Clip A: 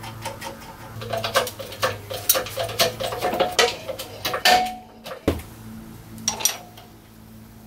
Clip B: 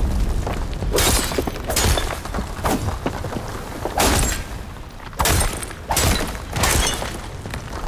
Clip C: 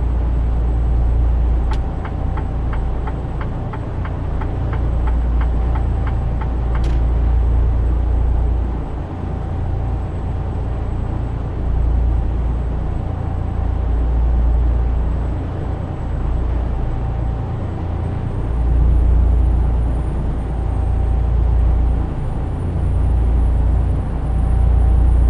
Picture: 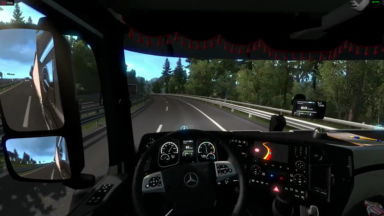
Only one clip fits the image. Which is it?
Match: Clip C